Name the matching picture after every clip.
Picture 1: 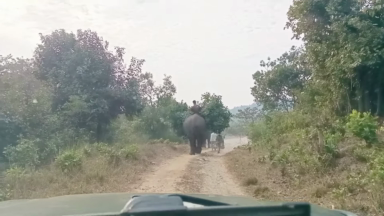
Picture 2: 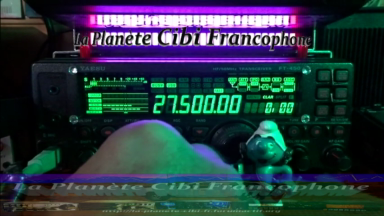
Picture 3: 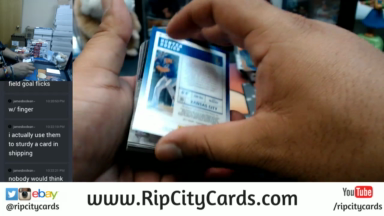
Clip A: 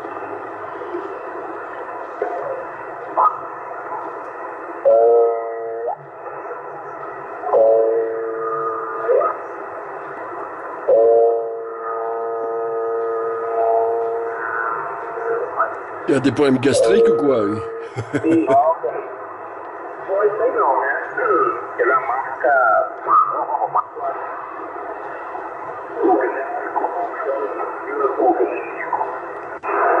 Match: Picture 2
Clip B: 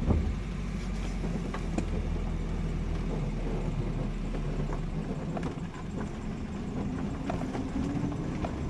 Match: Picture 1